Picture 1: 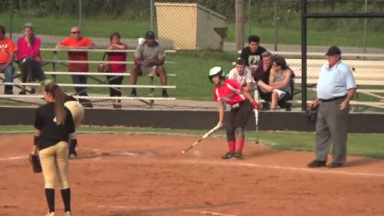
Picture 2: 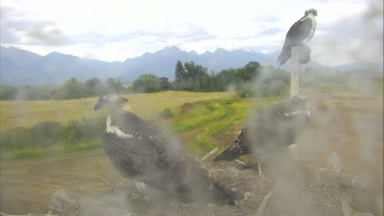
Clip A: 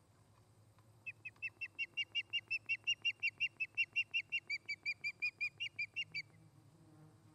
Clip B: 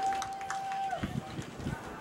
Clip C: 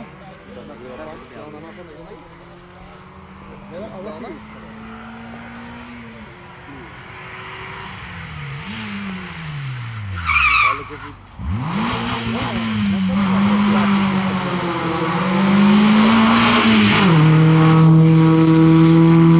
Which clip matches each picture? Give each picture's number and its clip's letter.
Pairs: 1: B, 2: A